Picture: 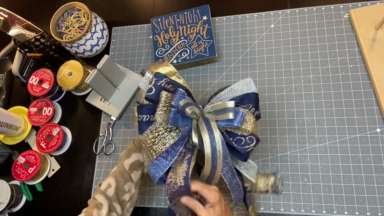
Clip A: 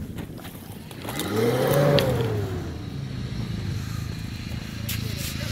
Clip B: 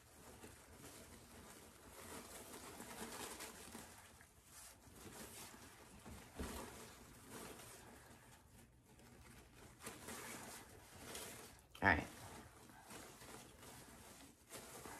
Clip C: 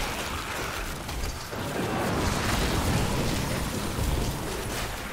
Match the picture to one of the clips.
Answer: B